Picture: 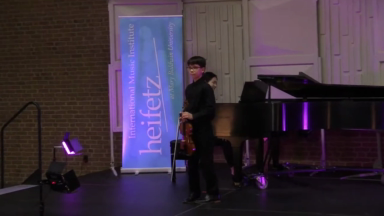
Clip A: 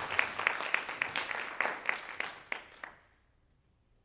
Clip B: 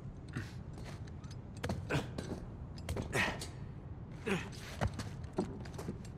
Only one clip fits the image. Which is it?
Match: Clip A